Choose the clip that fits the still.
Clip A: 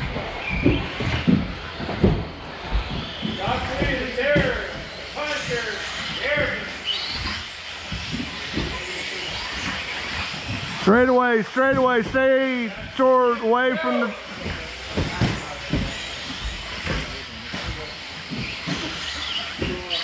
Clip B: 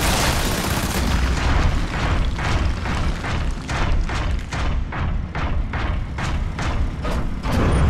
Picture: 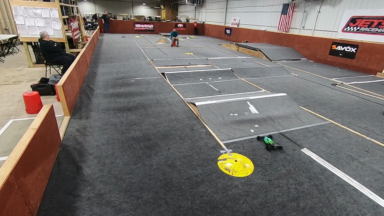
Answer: A